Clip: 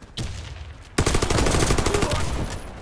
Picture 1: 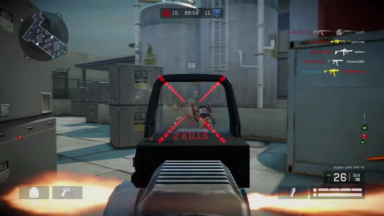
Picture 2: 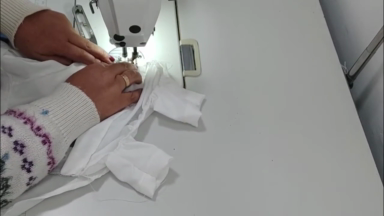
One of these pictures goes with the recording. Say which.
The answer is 1